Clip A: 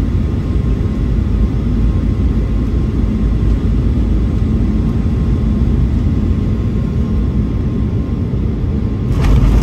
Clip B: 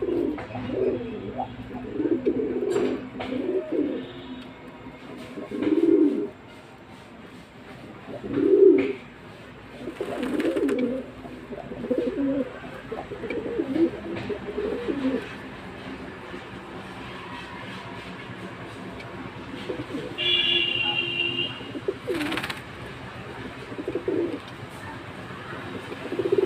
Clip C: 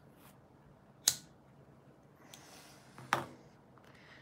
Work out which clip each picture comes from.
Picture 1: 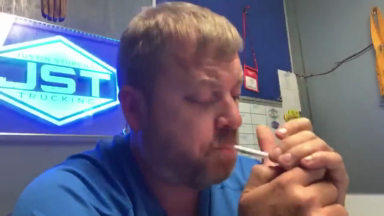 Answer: C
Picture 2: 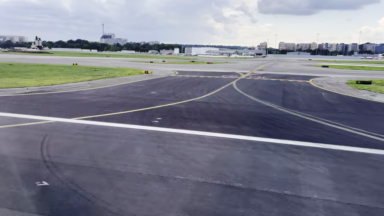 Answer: A